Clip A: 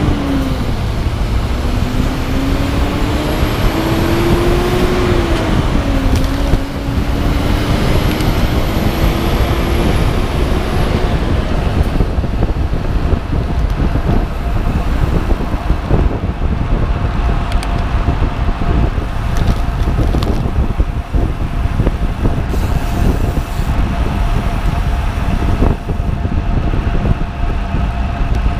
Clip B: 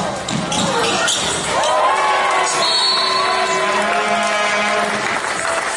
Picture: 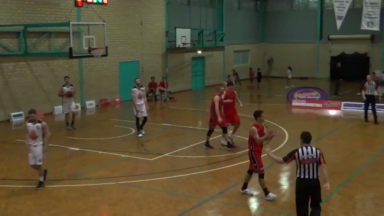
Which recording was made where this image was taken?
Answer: B